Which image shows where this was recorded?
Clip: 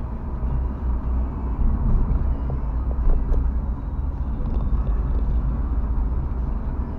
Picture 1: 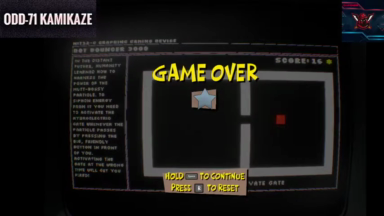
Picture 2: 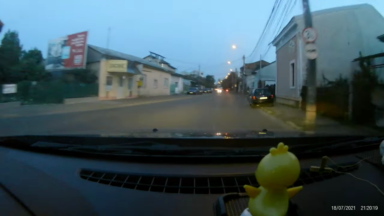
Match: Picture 2